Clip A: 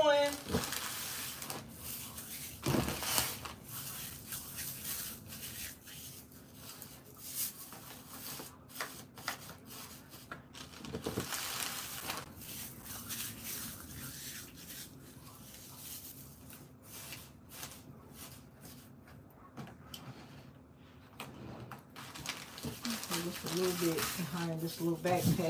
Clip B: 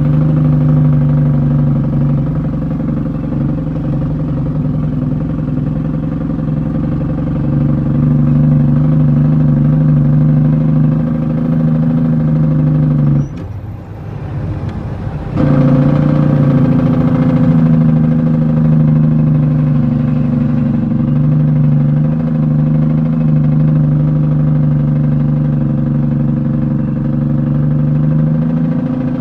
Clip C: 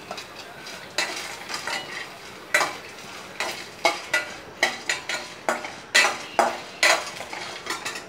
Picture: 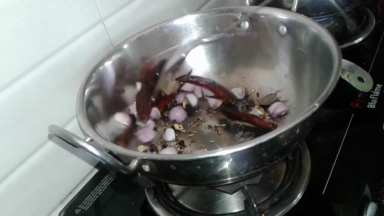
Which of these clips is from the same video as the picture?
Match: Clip C